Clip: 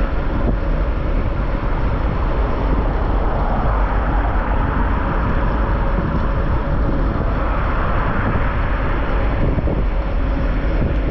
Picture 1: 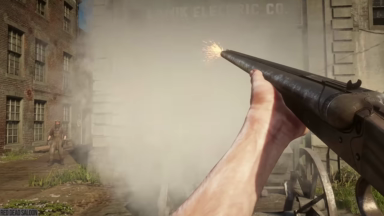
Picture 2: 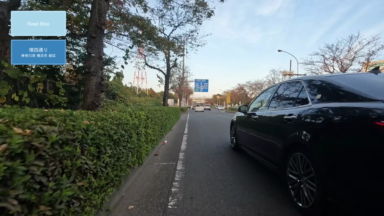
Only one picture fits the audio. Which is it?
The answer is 2